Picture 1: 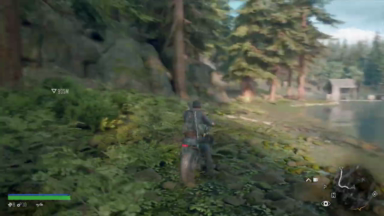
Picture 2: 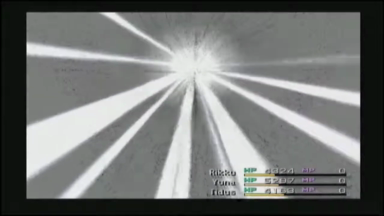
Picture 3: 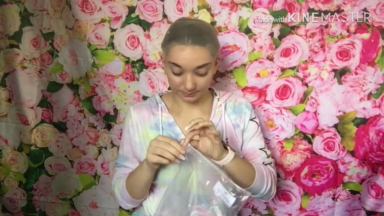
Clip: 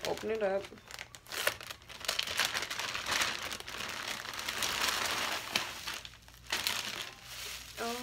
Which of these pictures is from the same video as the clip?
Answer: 3